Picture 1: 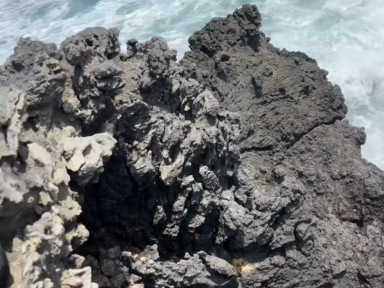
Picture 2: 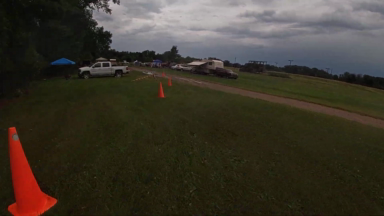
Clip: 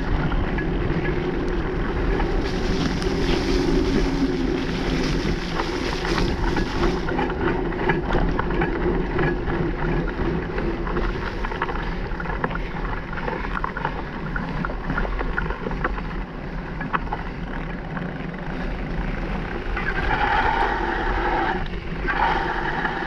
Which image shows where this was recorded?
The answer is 2